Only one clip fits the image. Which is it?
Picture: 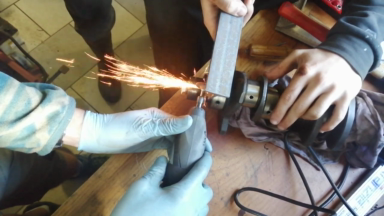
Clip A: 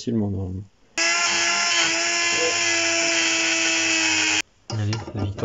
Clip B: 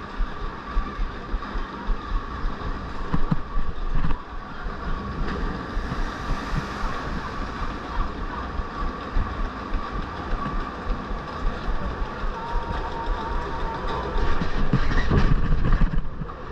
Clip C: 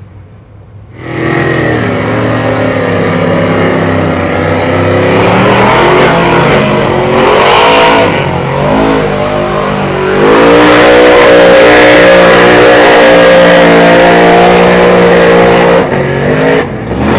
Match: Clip A